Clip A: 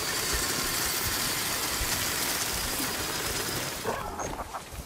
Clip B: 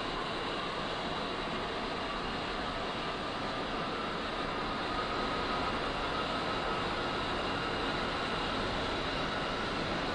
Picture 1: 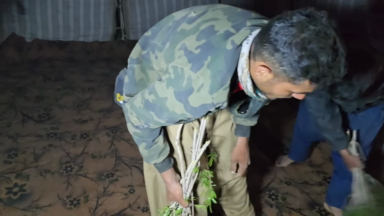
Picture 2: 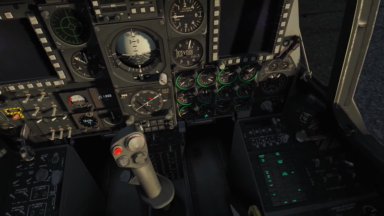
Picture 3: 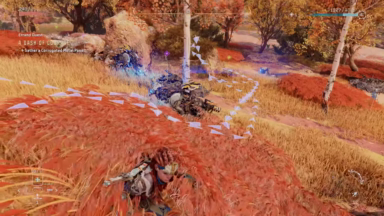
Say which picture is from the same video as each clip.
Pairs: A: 3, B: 2